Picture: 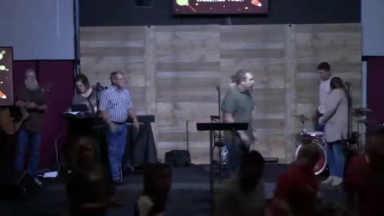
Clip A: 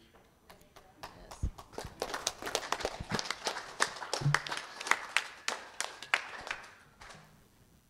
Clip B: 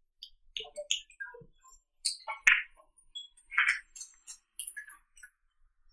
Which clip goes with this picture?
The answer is A